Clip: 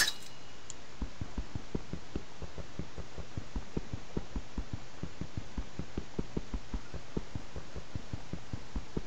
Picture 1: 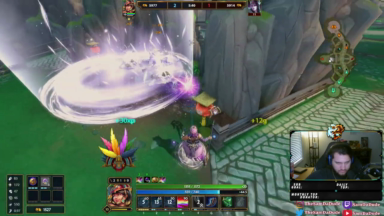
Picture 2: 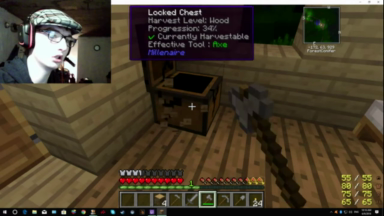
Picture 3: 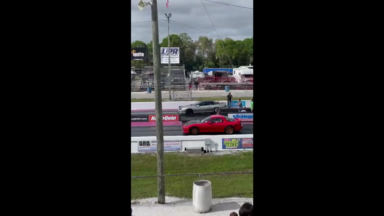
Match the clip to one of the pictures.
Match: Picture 2